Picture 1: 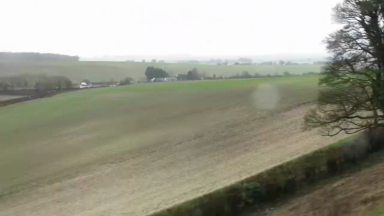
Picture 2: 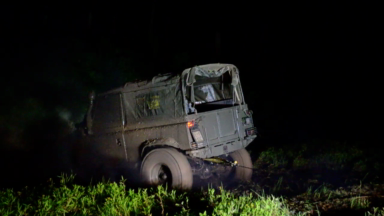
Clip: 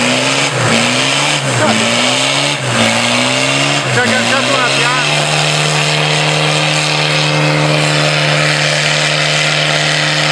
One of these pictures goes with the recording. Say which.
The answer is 2